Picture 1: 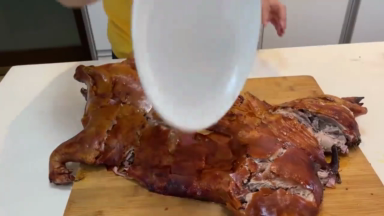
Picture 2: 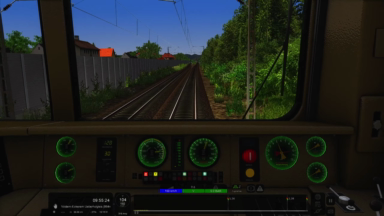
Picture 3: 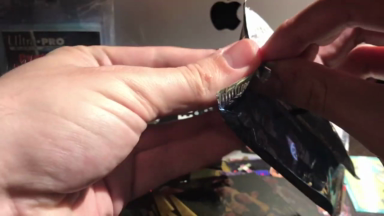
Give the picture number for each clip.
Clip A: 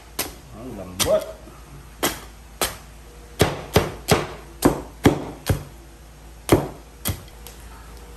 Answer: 1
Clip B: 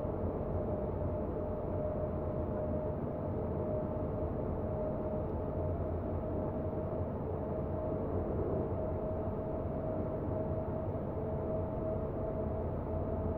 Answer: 2